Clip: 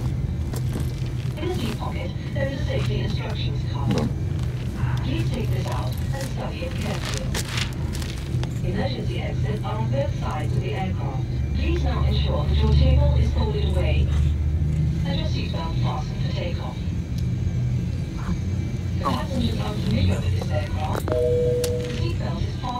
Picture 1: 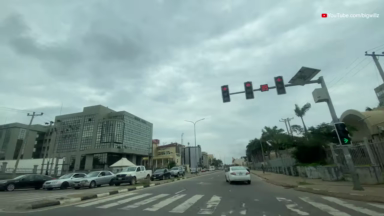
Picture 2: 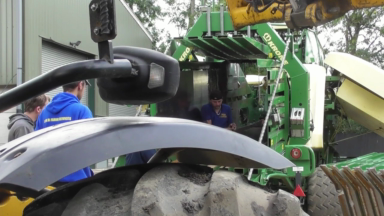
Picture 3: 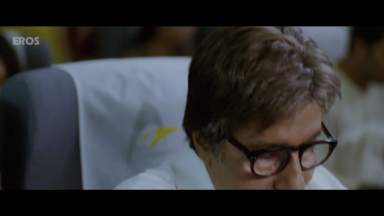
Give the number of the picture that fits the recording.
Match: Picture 3